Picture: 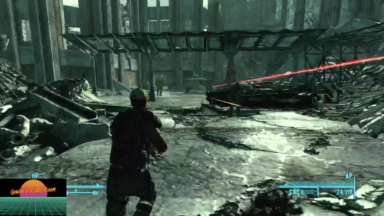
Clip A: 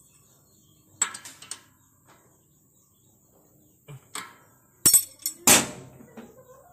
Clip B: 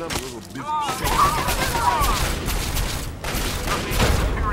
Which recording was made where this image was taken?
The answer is B